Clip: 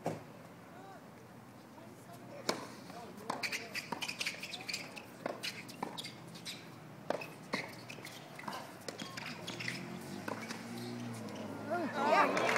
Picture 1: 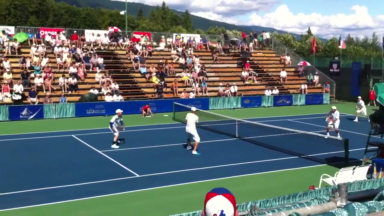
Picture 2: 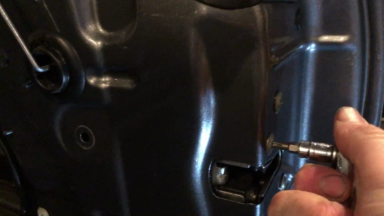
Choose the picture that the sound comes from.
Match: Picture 1